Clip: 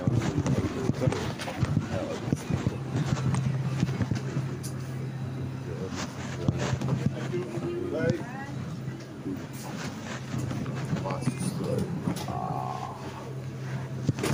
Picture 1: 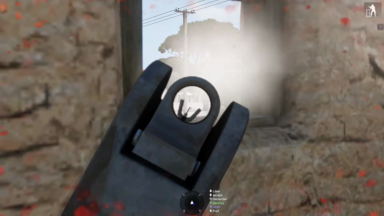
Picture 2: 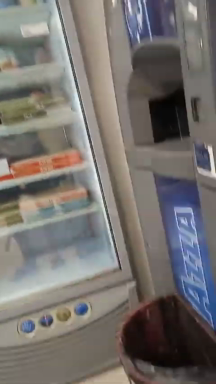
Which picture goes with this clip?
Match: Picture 2